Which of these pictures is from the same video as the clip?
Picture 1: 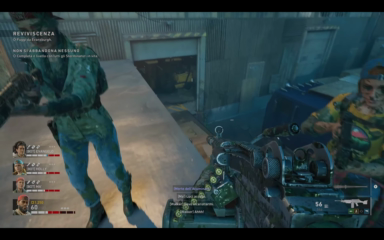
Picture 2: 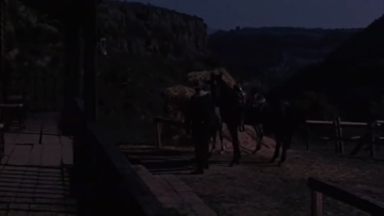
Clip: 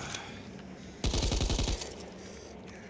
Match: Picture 1